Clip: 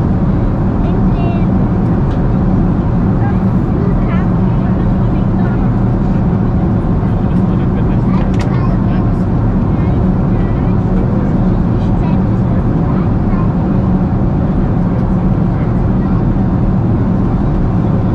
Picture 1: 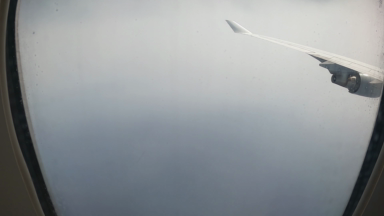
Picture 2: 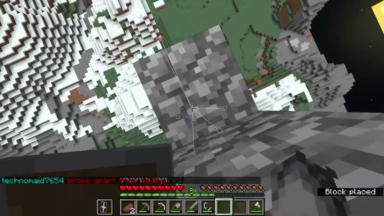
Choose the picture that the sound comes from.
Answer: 1